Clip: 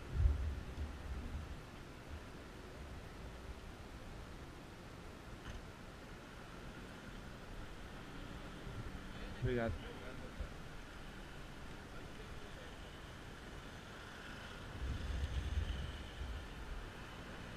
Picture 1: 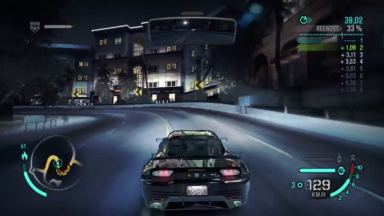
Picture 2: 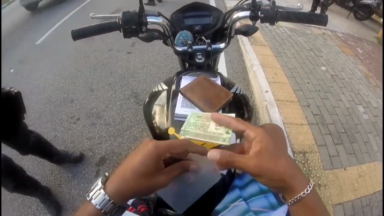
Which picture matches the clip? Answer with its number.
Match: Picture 2